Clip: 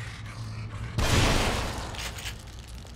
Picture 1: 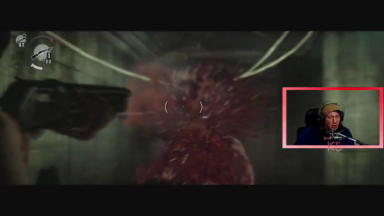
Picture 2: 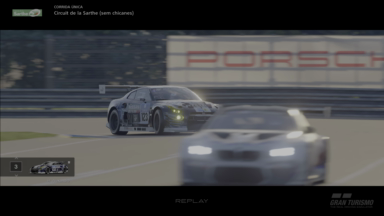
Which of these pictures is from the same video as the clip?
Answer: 1